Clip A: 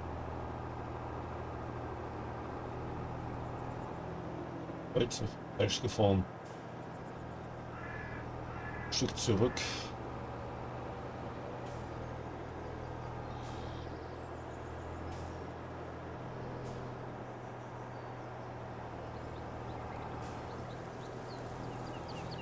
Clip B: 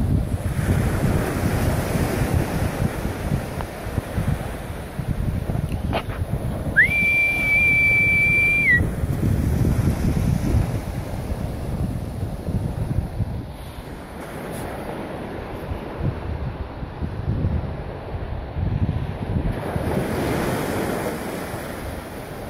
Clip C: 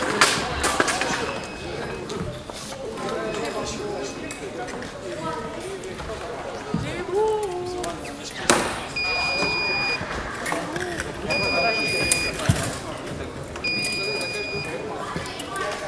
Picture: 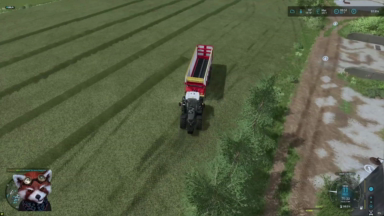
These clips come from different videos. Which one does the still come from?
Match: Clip A